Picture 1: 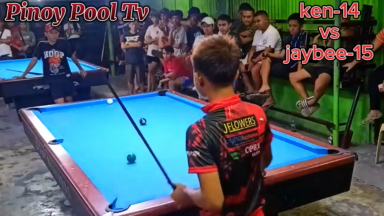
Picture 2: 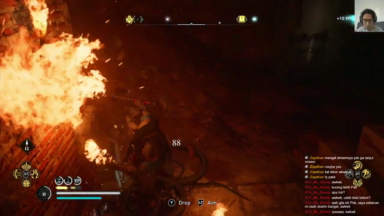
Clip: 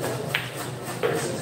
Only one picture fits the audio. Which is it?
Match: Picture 1